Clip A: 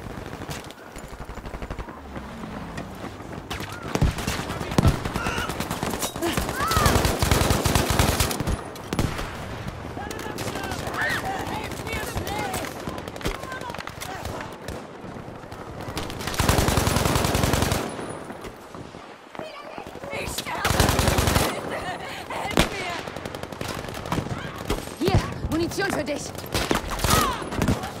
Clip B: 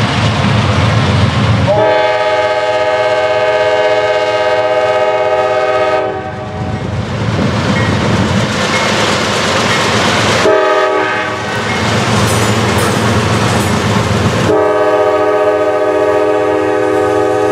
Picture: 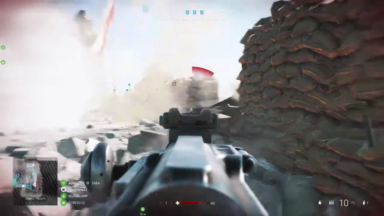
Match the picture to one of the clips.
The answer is A